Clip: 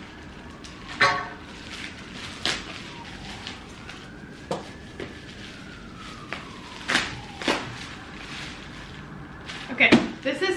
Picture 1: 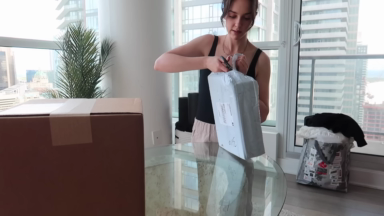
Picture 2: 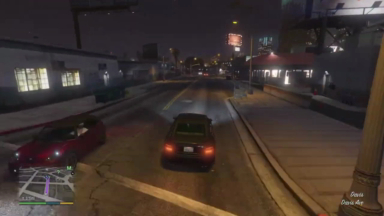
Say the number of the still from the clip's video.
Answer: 1